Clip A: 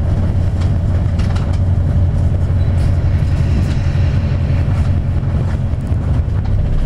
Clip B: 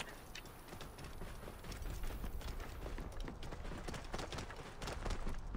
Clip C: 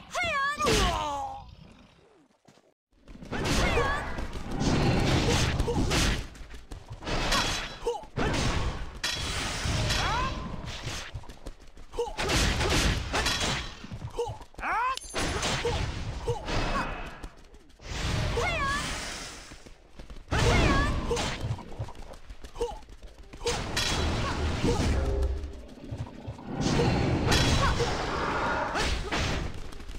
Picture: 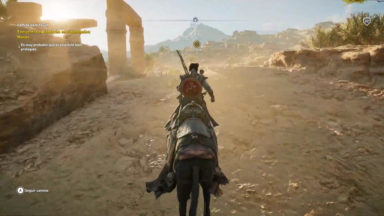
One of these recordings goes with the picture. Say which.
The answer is B